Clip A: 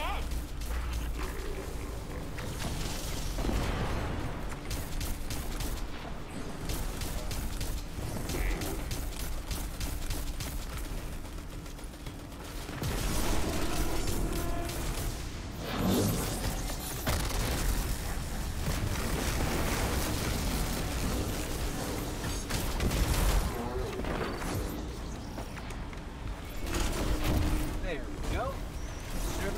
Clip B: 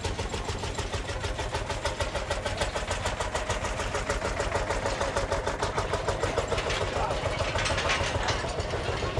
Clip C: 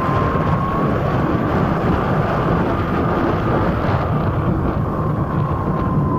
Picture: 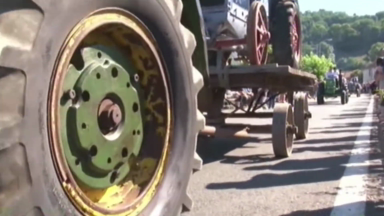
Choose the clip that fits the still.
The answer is B